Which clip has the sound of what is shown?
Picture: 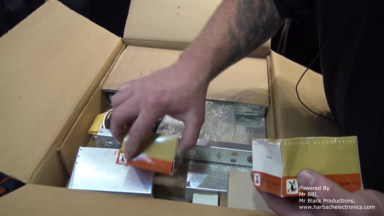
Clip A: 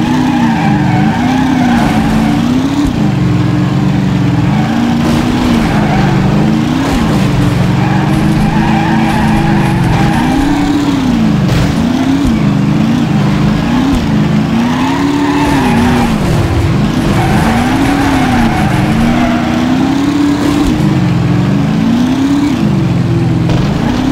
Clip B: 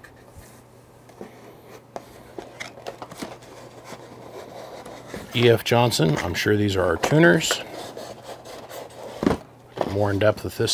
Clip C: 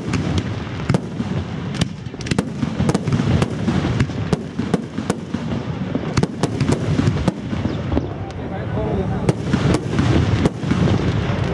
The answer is B